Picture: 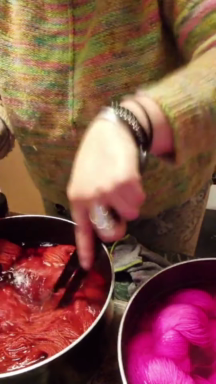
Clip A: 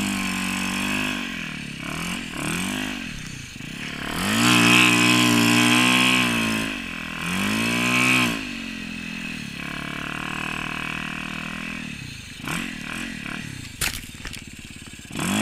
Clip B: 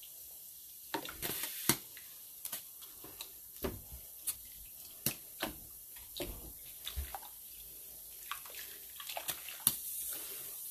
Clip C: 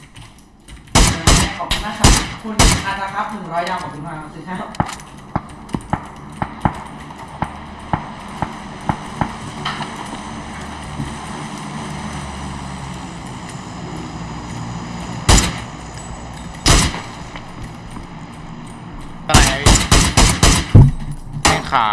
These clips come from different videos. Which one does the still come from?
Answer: B